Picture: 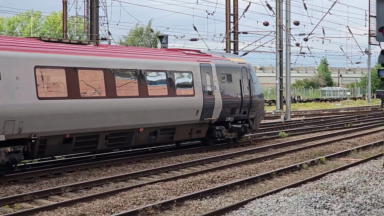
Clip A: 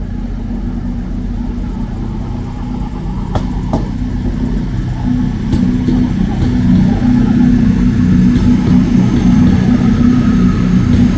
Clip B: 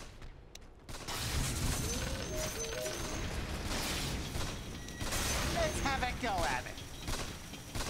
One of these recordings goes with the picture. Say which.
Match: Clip A